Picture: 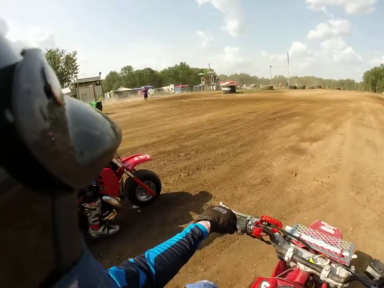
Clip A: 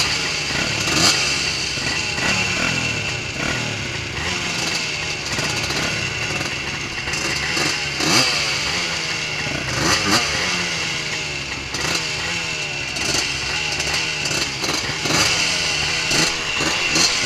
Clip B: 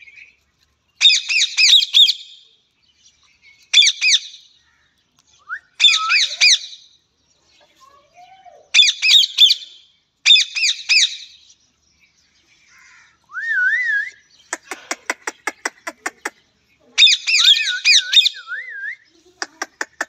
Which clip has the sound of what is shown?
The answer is A